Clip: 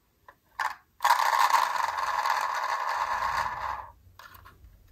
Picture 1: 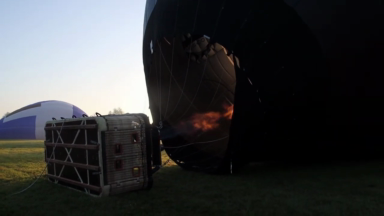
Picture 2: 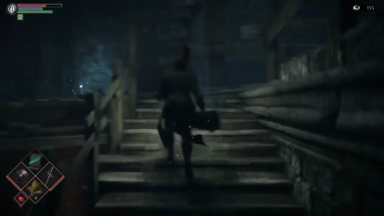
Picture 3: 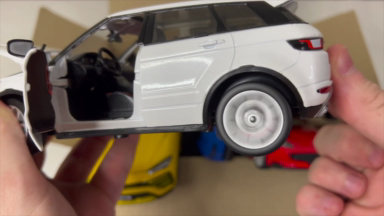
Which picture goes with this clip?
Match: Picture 3